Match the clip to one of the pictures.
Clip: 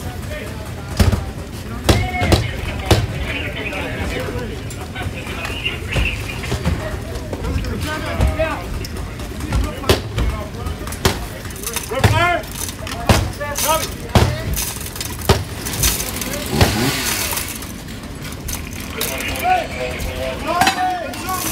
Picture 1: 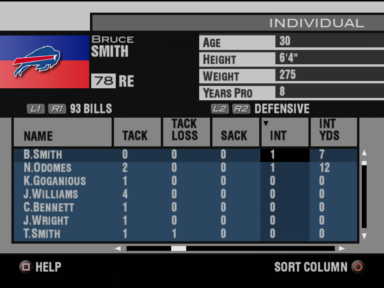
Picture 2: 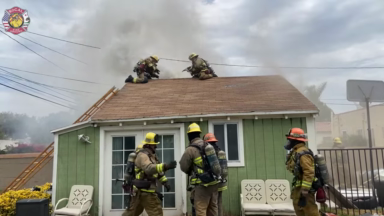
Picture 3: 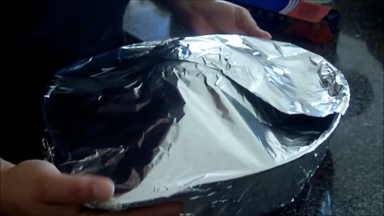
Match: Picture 2